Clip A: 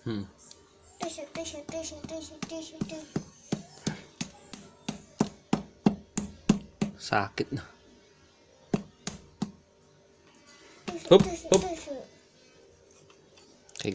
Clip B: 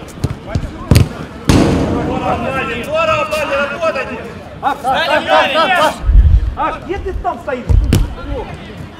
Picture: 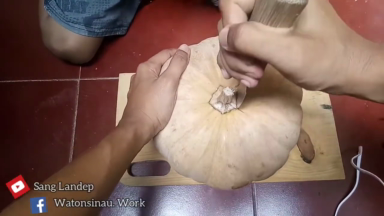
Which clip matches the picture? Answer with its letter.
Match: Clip A